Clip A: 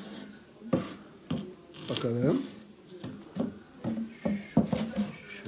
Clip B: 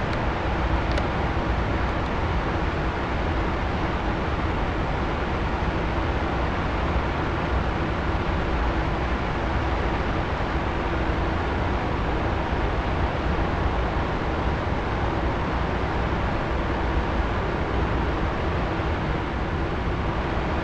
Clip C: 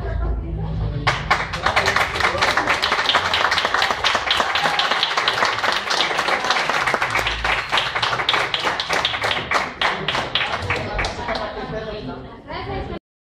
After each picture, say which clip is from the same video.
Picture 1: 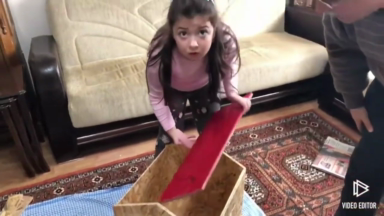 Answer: A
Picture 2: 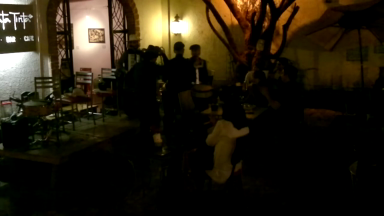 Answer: C